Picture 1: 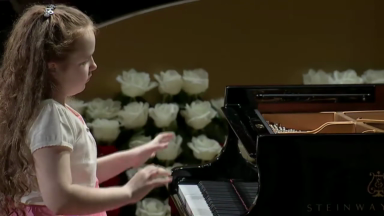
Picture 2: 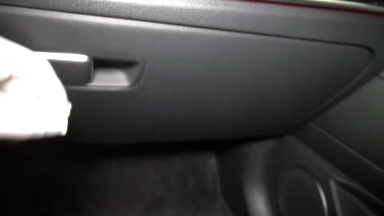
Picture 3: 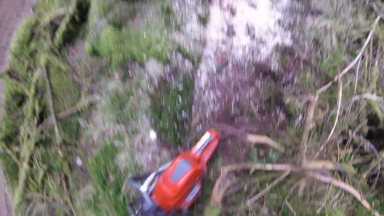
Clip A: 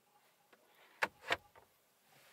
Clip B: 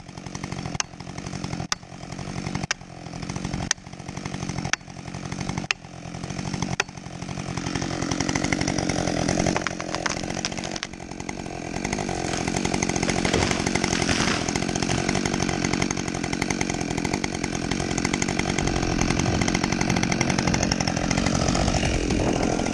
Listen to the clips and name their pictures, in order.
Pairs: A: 2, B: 3